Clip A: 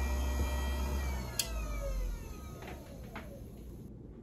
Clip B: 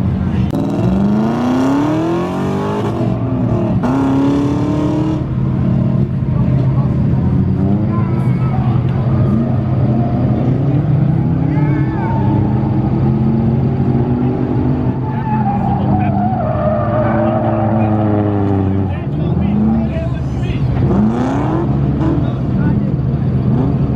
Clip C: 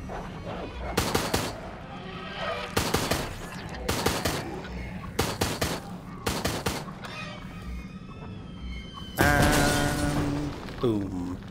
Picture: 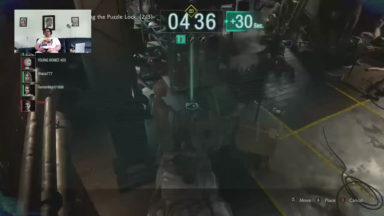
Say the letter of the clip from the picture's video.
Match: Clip C